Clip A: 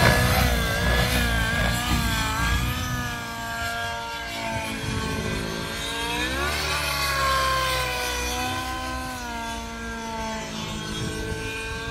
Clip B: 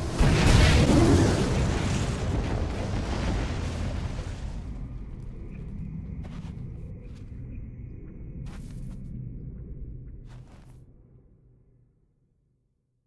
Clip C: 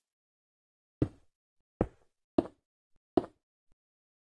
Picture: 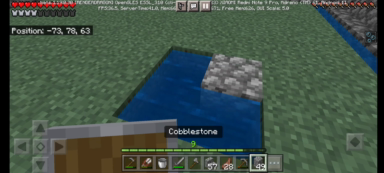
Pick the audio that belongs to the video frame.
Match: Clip C